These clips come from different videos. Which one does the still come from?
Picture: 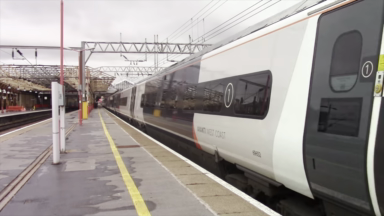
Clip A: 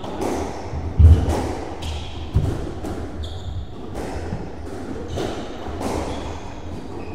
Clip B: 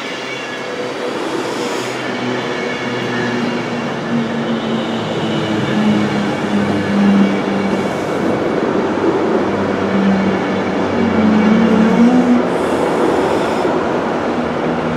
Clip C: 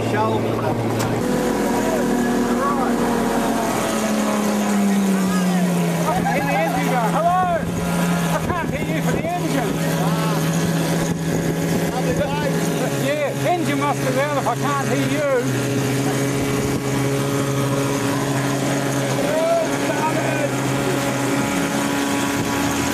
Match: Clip B